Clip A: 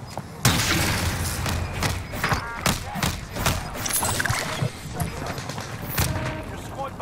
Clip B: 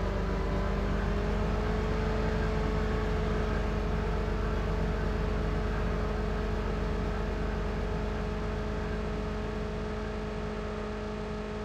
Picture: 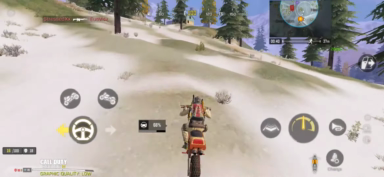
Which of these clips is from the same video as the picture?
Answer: B